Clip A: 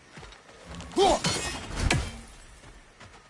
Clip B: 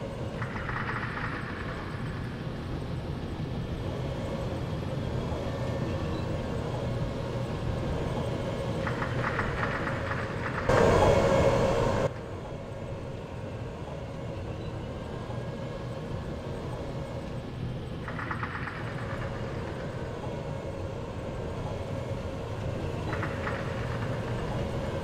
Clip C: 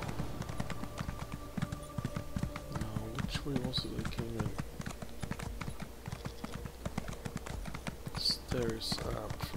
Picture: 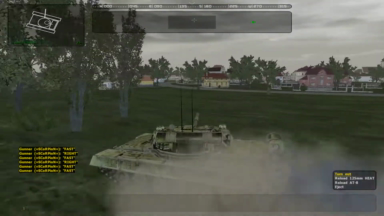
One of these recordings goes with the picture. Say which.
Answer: B